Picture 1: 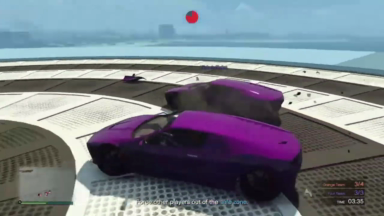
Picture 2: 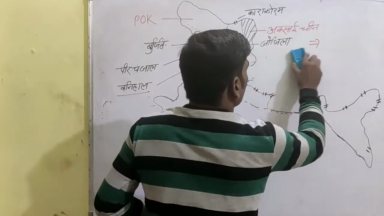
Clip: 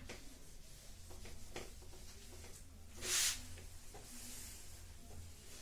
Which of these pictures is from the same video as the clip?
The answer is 2